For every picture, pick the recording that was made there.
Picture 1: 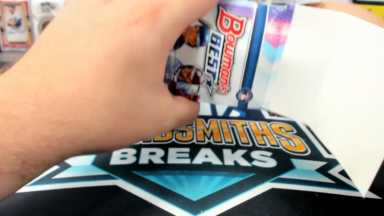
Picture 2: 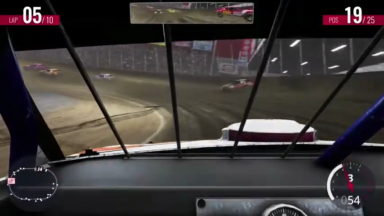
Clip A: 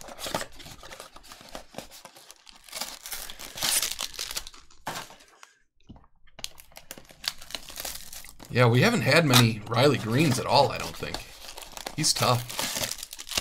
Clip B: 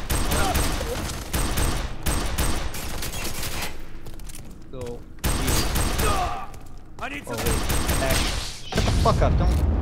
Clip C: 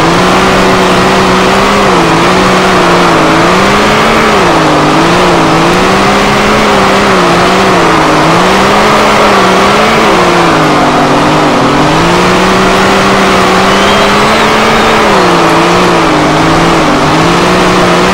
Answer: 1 A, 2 C